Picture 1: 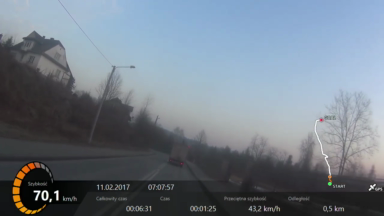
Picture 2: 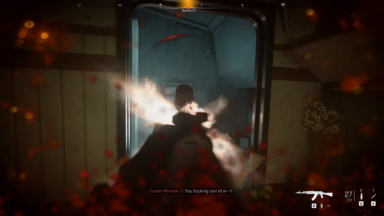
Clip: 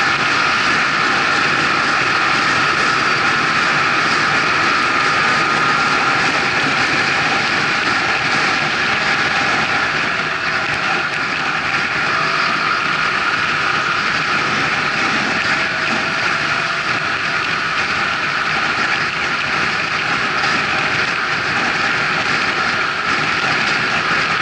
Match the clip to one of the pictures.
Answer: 1